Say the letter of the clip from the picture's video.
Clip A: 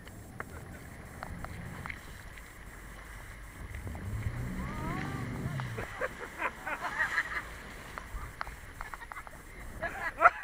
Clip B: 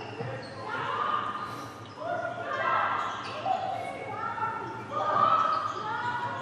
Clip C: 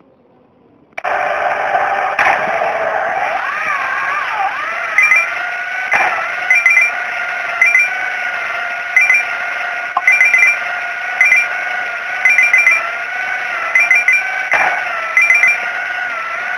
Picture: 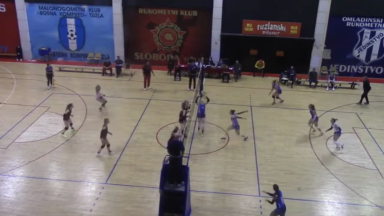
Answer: B